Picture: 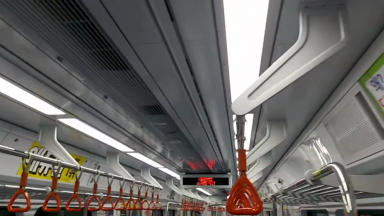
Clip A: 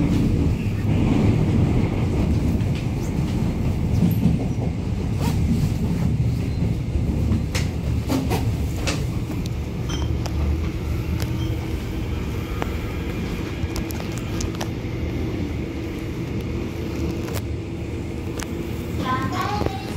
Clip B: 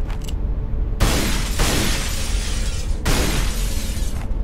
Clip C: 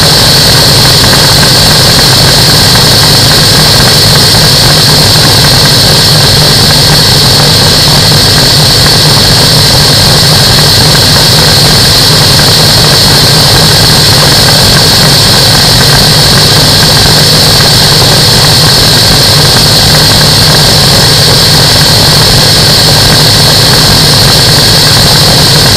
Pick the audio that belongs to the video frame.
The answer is A